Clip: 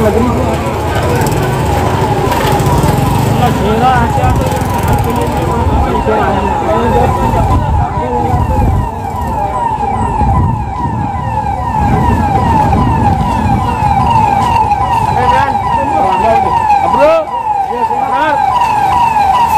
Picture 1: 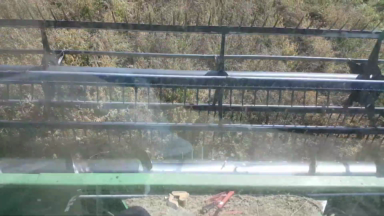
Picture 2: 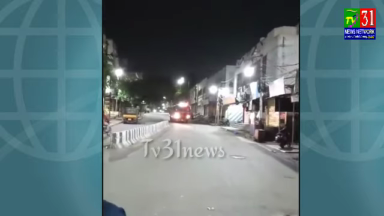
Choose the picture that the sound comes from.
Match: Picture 2